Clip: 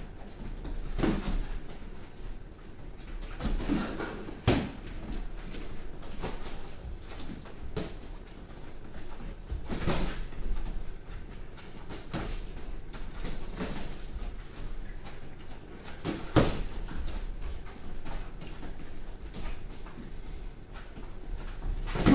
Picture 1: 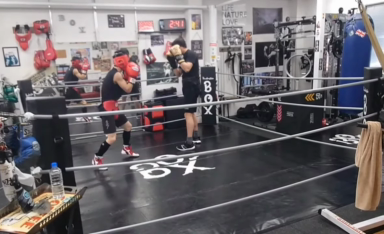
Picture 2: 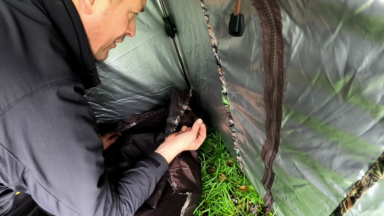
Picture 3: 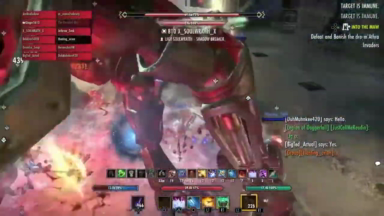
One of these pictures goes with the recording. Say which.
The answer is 1